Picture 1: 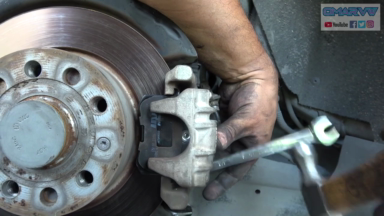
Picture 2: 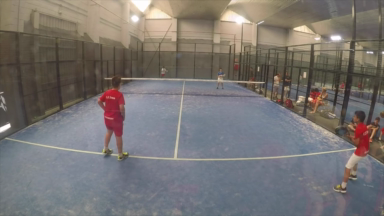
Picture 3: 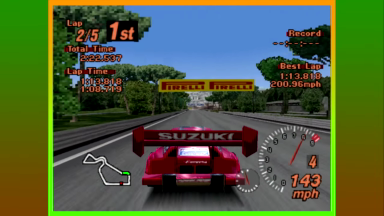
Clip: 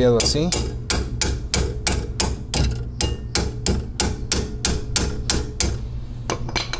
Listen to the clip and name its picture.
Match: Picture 1